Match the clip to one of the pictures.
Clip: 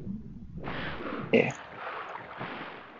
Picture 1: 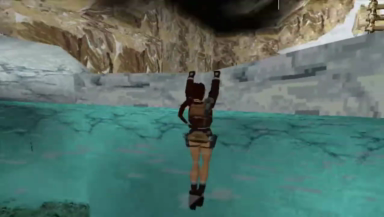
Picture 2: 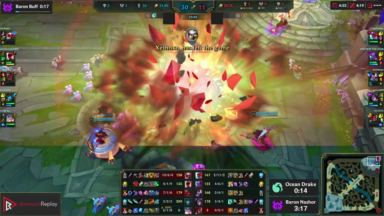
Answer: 1